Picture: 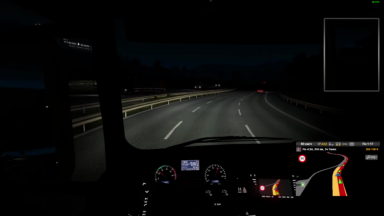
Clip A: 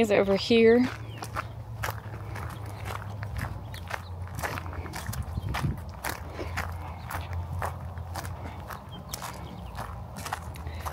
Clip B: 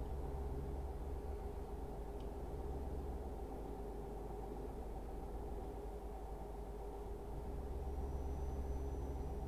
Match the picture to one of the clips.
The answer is B